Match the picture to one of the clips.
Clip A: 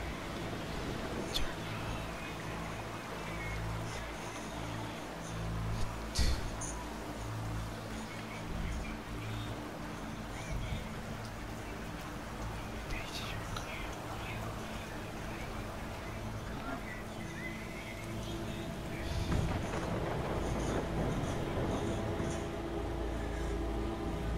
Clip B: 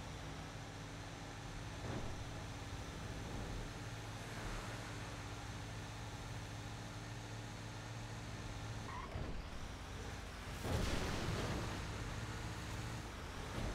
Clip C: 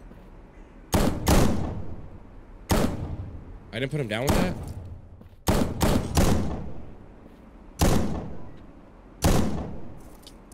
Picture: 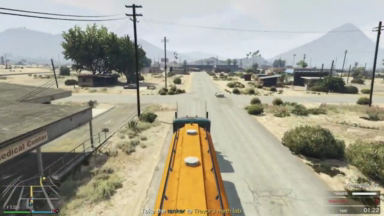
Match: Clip B